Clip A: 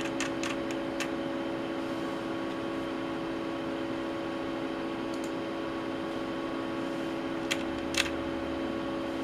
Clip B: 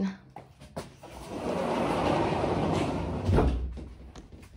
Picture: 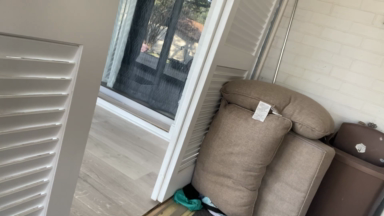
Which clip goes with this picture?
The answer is B